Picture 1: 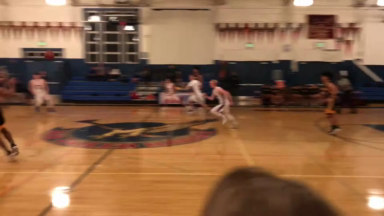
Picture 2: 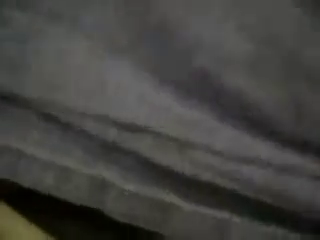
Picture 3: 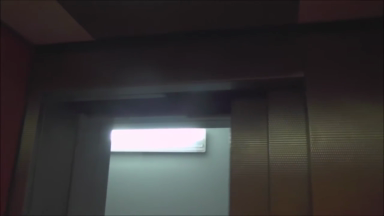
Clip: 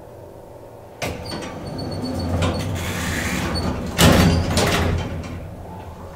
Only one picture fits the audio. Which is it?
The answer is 3